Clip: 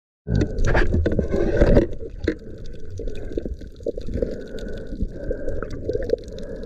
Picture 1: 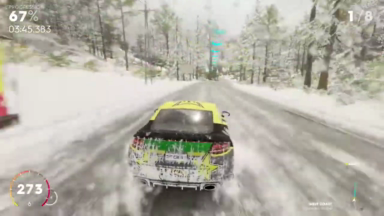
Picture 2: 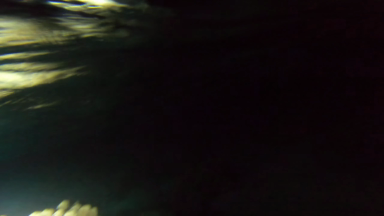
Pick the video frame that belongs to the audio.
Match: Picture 2